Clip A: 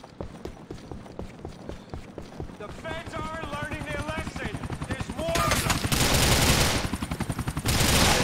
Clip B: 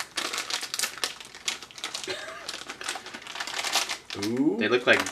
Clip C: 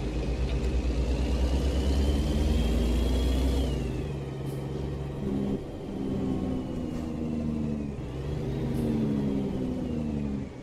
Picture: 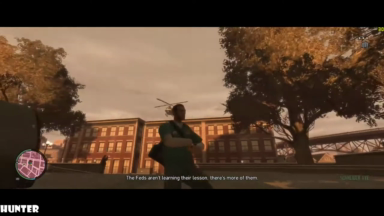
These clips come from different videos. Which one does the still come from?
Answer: A